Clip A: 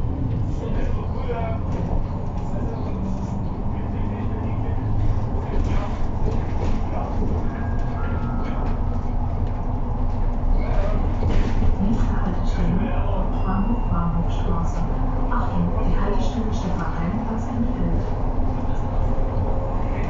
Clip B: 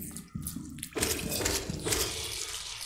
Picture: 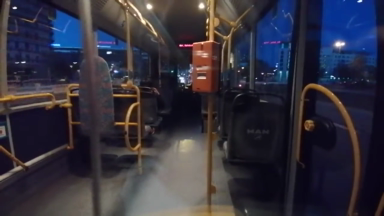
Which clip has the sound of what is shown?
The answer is A